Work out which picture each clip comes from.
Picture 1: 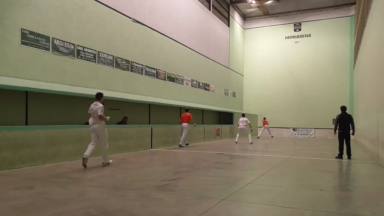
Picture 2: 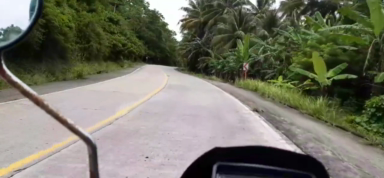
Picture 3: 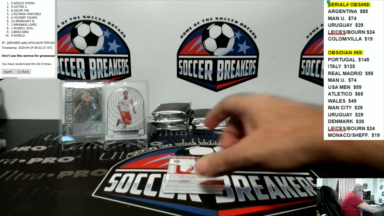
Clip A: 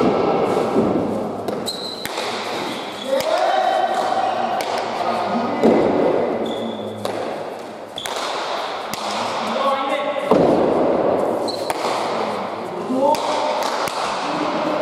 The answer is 1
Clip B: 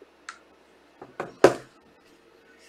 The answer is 3